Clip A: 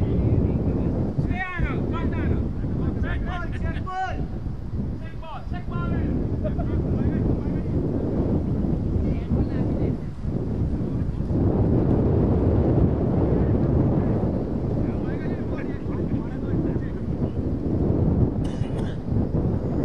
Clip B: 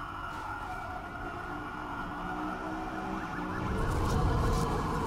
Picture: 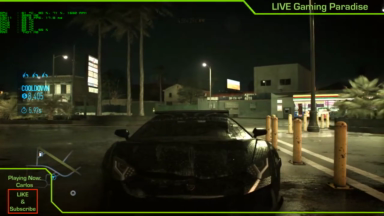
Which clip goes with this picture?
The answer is B